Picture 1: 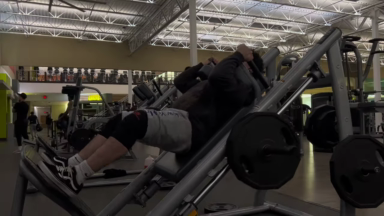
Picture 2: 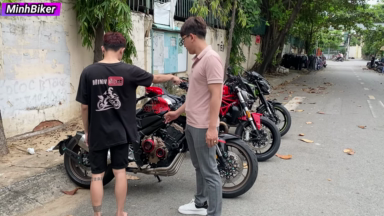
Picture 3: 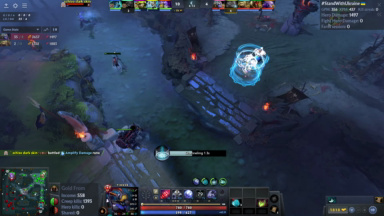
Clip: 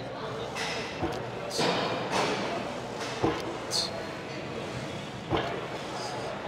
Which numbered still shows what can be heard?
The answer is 1